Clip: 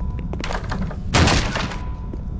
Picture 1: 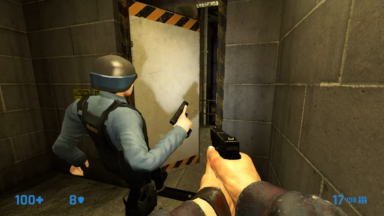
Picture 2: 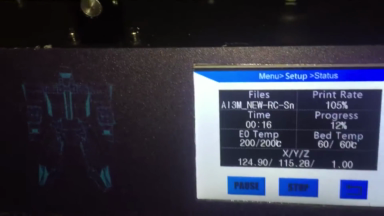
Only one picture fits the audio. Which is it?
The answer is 1